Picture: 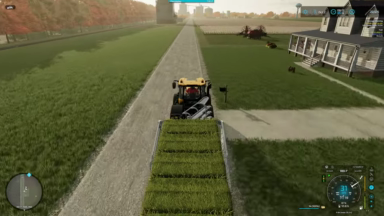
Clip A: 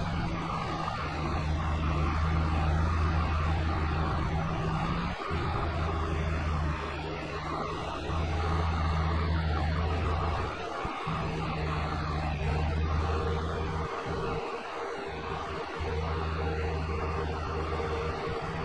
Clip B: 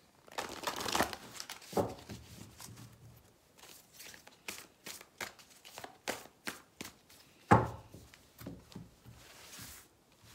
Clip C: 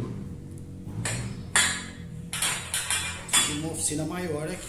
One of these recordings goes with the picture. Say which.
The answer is A